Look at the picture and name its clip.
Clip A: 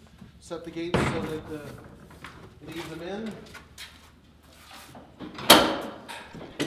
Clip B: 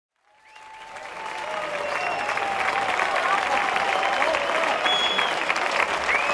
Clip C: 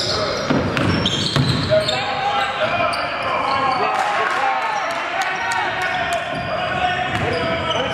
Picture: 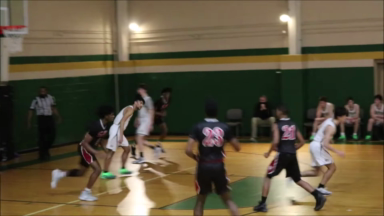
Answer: C